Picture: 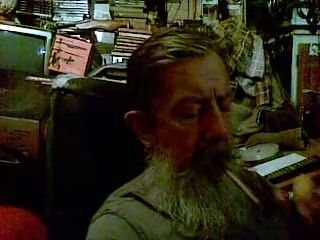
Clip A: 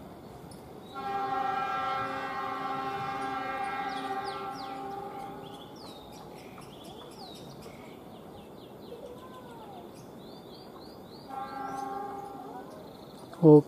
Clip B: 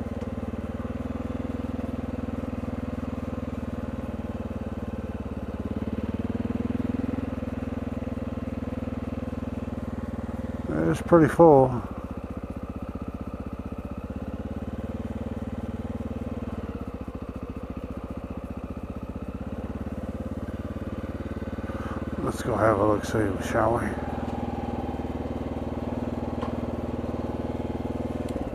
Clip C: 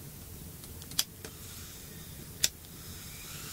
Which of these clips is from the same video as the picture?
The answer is C